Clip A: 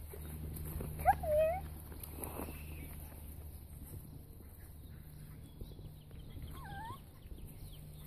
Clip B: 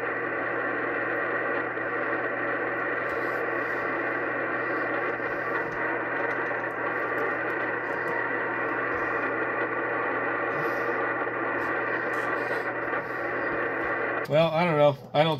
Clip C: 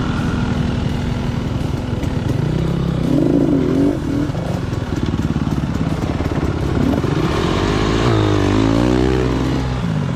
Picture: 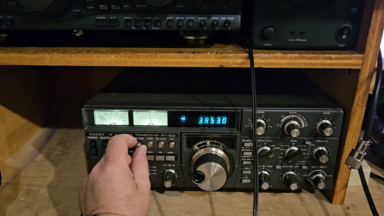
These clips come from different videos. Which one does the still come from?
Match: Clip B